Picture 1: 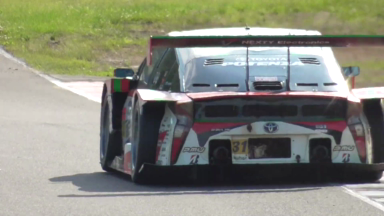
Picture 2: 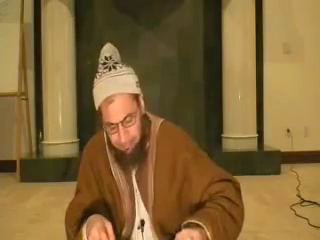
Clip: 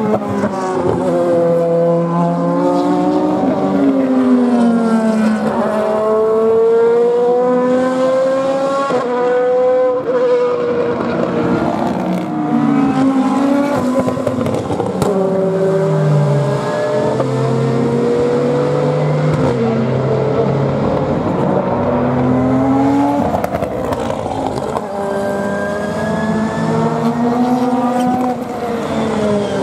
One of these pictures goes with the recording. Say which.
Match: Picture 1